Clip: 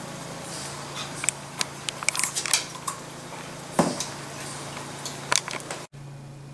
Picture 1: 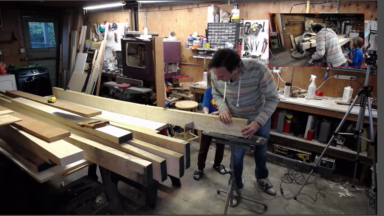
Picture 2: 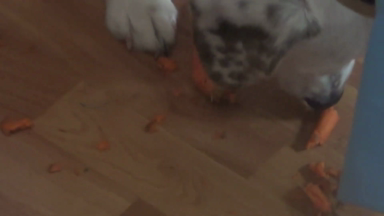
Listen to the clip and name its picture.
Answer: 2